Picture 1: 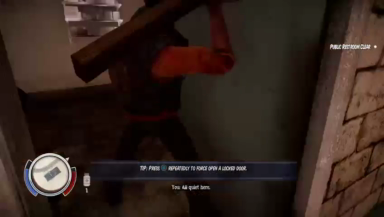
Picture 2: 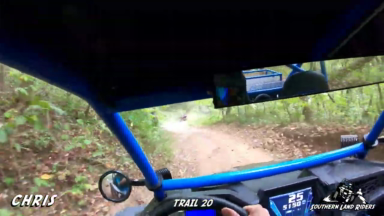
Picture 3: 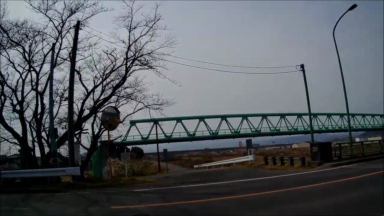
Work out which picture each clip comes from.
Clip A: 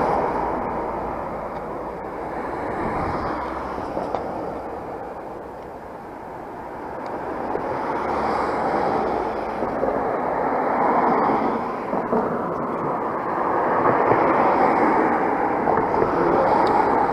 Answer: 3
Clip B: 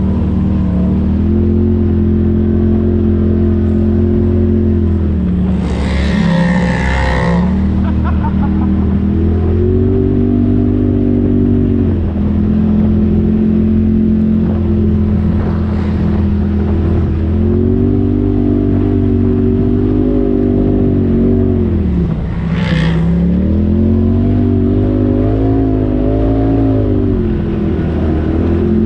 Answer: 2